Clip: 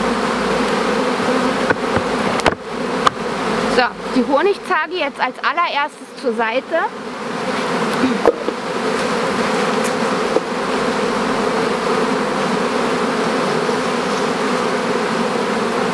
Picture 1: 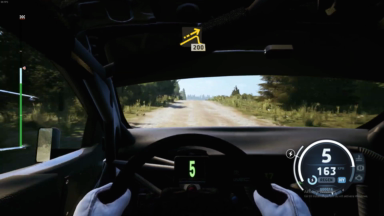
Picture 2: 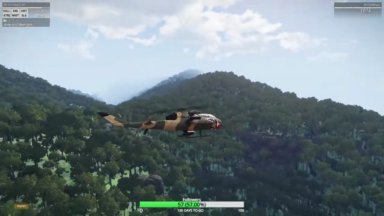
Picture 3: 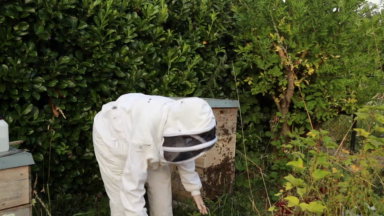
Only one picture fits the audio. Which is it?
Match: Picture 3